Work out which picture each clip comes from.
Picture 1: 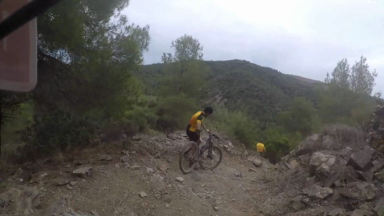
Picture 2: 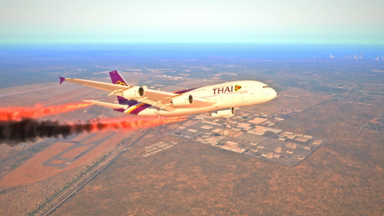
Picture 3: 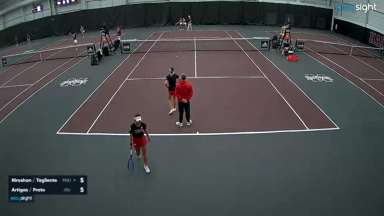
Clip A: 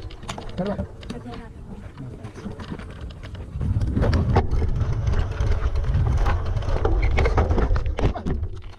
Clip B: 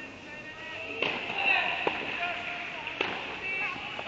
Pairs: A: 1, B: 3